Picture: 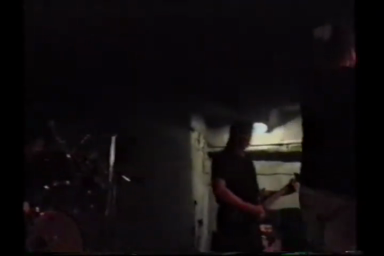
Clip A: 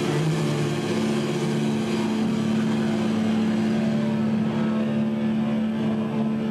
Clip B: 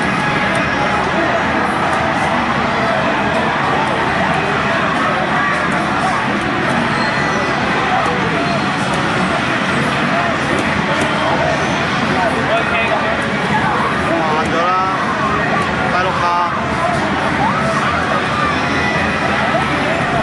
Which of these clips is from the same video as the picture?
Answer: A